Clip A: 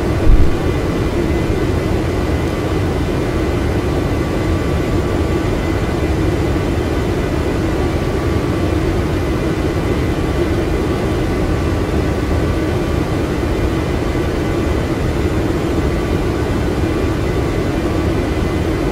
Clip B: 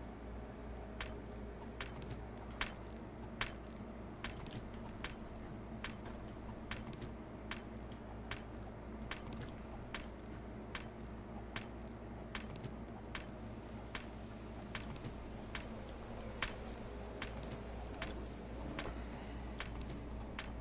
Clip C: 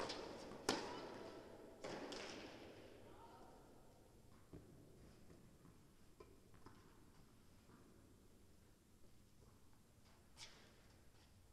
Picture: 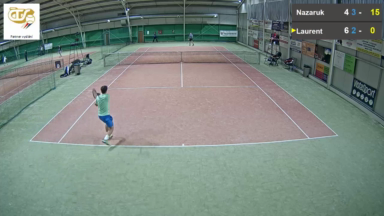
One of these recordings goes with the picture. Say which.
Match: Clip C